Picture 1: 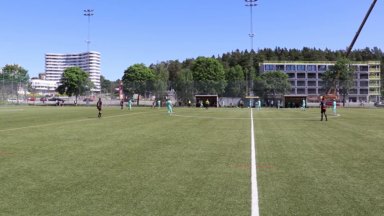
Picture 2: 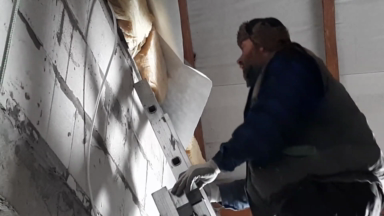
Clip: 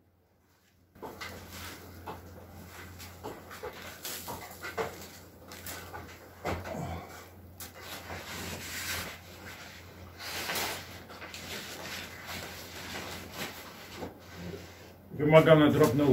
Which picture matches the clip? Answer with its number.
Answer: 2